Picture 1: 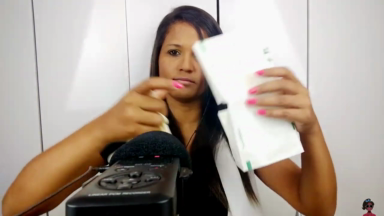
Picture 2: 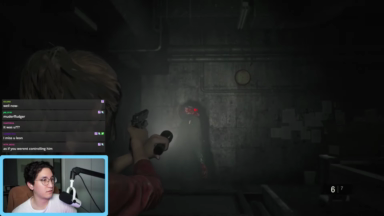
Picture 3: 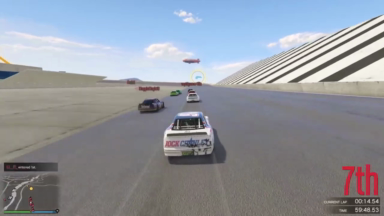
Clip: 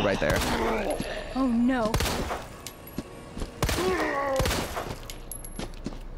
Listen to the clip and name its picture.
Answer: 2